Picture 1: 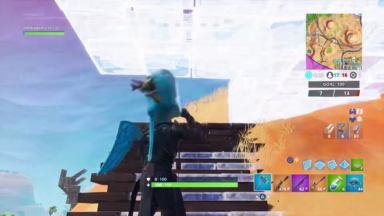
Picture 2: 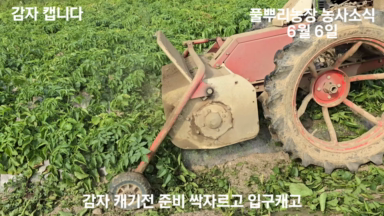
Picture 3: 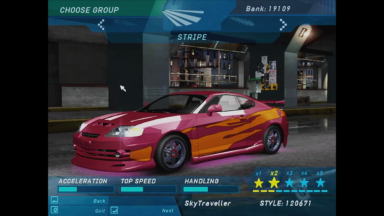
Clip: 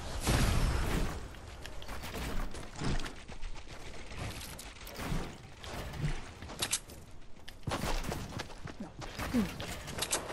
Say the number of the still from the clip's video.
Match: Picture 1